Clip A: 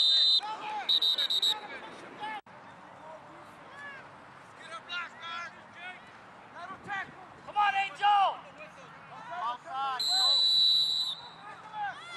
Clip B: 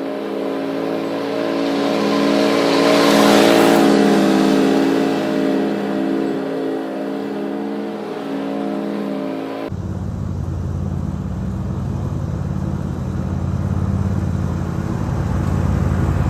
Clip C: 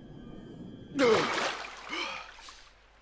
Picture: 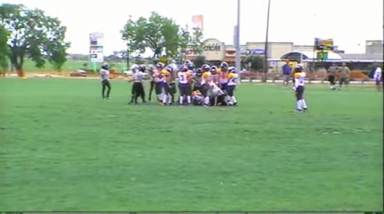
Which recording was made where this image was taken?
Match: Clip A